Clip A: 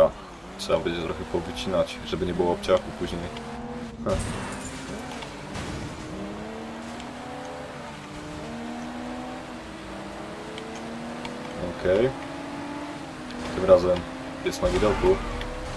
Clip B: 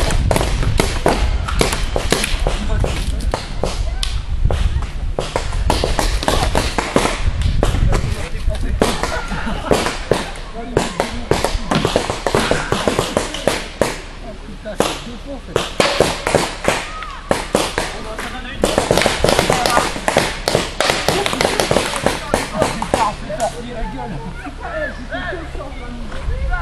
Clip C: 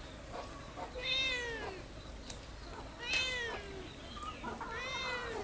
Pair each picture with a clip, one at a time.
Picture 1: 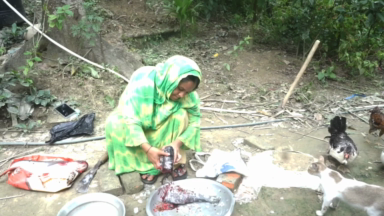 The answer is C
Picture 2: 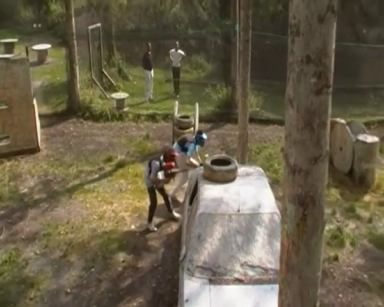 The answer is B